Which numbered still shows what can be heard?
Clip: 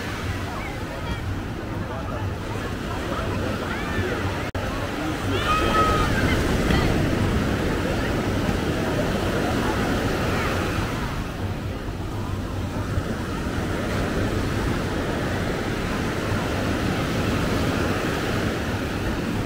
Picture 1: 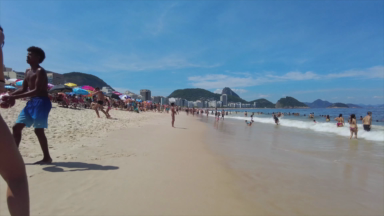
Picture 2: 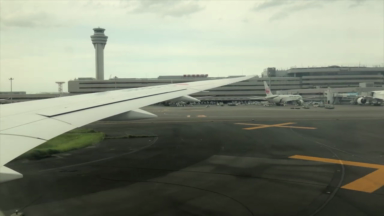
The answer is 1